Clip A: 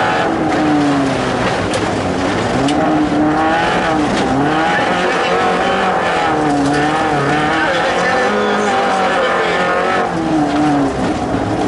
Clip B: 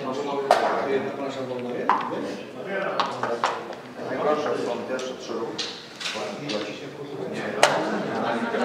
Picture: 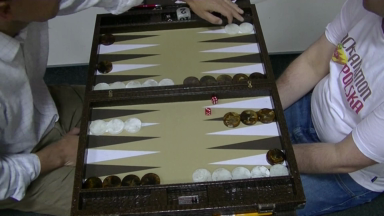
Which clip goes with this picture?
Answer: B